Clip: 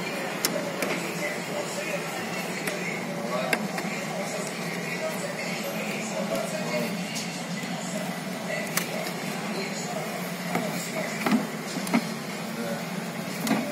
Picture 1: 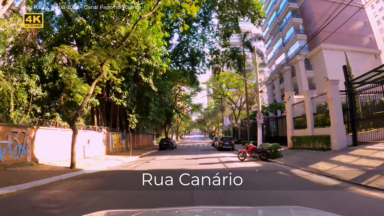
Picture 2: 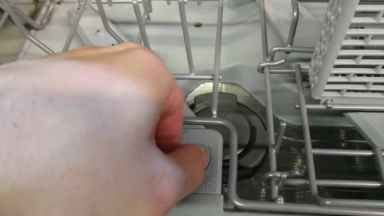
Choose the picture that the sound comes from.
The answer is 2